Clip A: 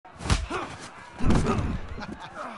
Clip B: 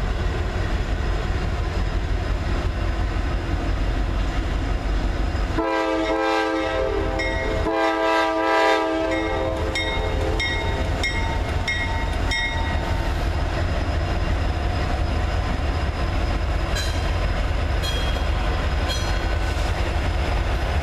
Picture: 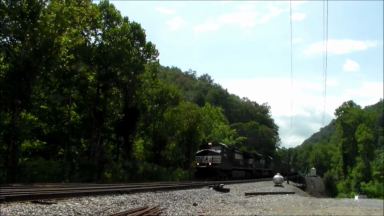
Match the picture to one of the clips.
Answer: B